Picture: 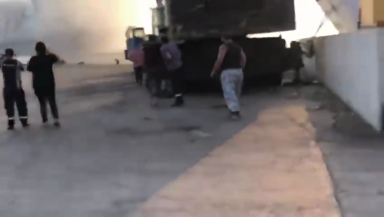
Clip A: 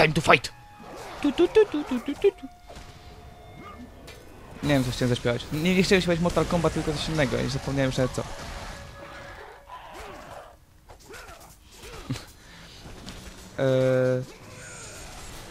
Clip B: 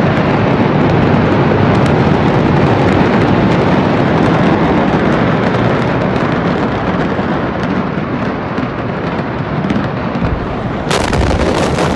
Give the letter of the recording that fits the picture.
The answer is B